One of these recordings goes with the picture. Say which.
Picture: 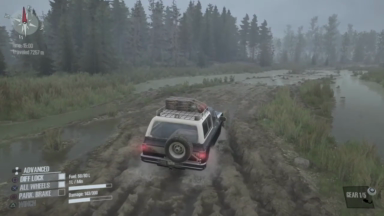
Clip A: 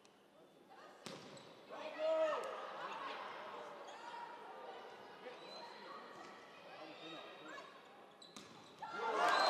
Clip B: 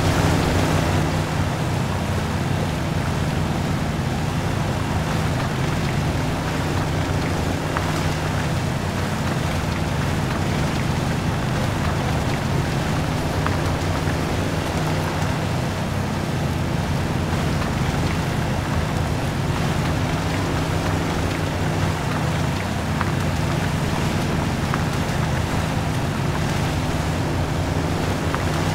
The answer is B